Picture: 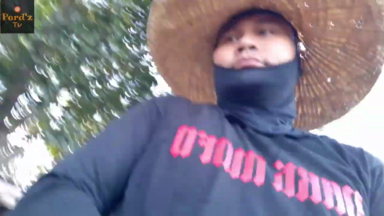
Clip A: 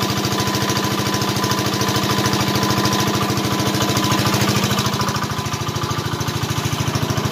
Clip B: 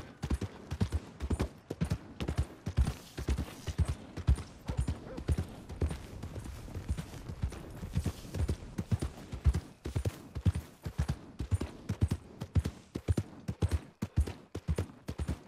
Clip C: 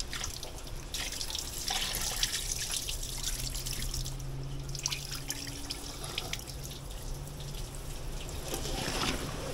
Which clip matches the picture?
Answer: A